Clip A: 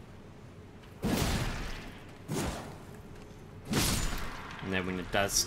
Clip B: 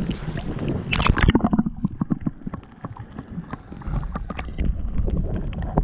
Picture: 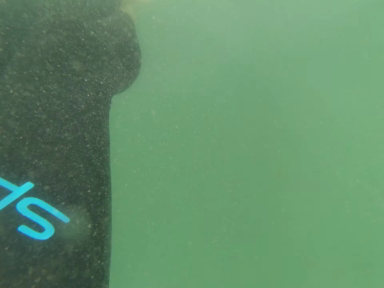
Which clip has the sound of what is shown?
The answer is B